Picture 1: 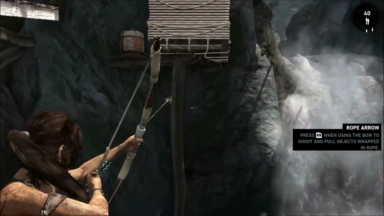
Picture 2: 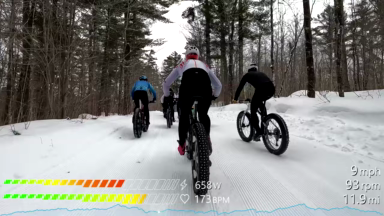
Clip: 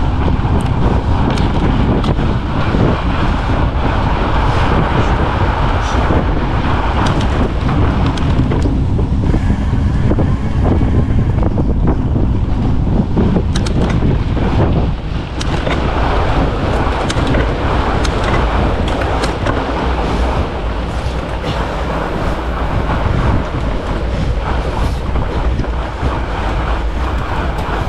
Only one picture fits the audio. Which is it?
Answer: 2